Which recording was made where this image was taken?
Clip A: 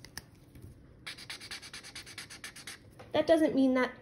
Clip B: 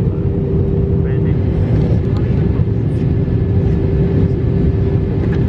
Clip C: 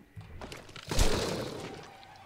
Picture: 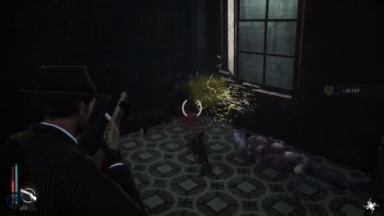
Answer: C